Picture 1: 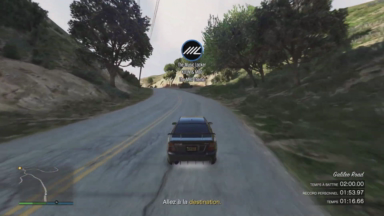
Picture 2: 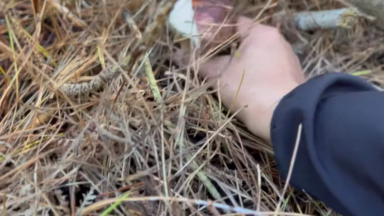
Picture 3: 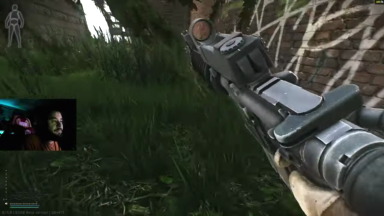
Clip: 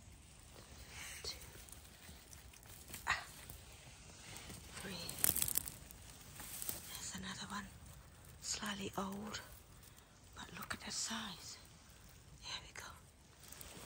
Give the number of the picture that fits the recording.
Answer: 2